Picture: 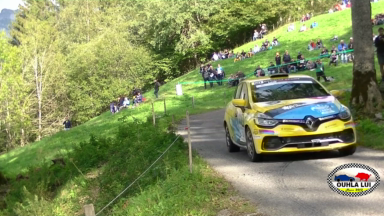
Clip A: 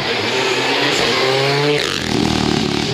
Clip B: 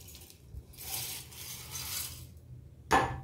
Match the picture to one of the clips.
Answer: A